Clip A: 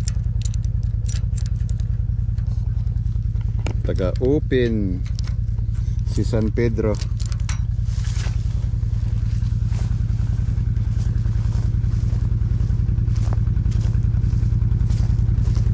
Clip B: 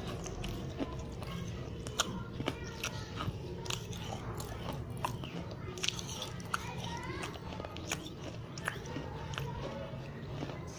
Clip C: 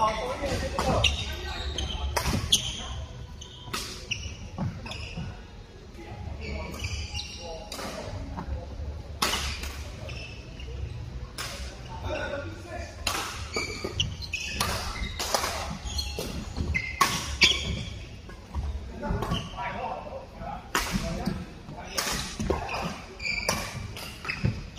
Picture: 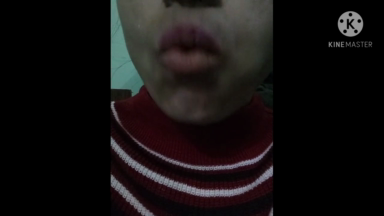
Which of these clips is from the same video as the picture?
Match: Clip B